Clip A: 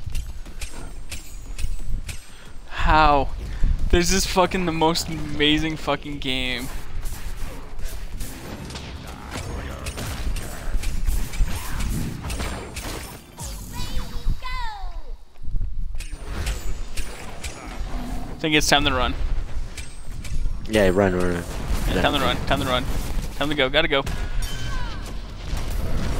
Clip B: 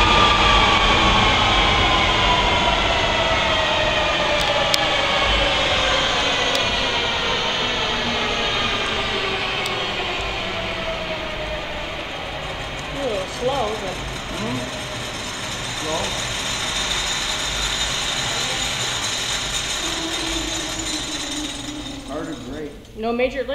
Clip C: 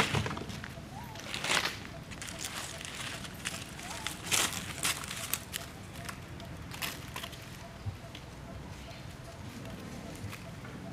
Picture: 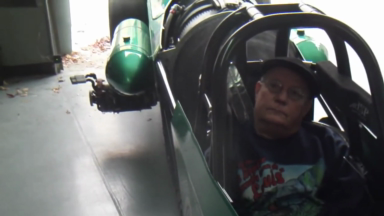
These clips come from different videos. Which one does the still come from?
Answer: B